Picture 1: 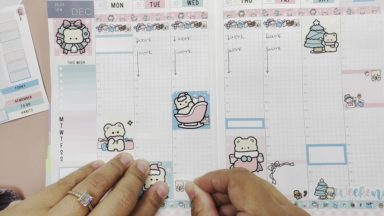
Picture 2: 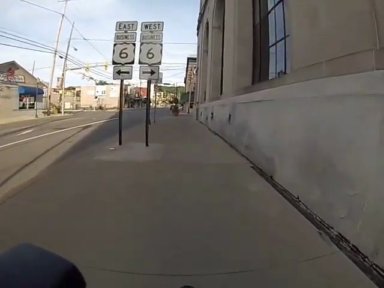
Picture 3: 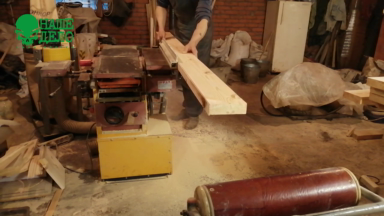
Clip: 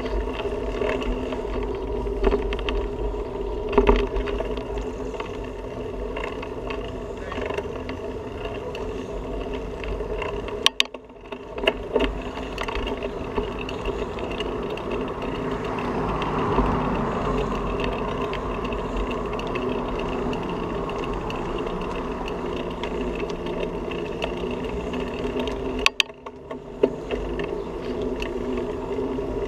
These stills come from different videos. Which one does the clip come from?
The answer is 2